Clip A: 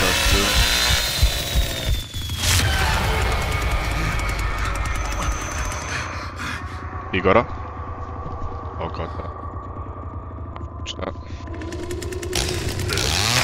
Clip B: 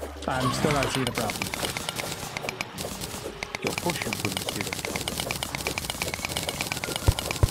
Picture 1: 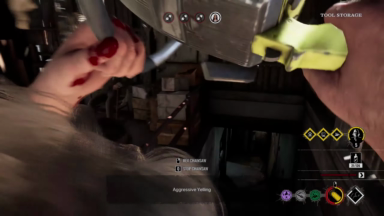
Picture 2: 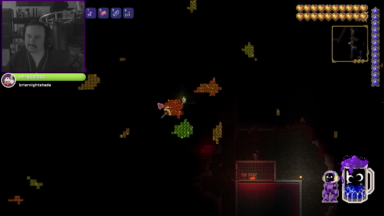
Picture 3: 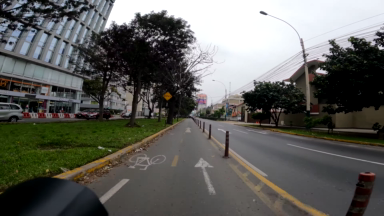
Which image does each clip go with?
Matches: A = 1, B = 2